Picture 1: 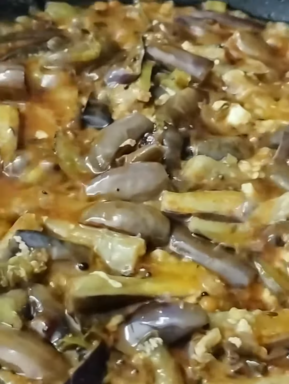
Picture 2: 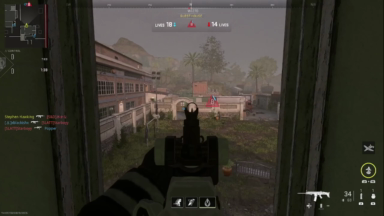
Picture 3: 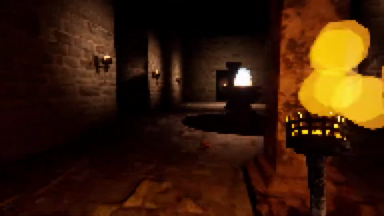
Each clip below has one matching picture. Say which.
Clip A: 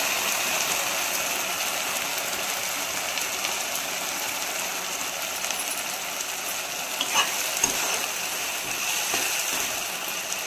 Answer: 1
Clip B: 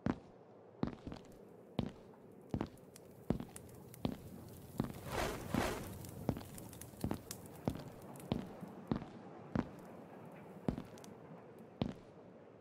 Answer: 3